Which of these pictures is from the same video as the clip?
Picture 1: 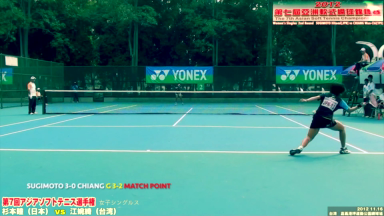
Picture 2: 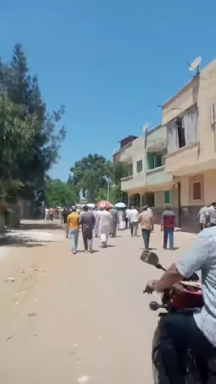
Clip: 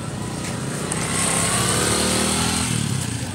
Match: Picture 2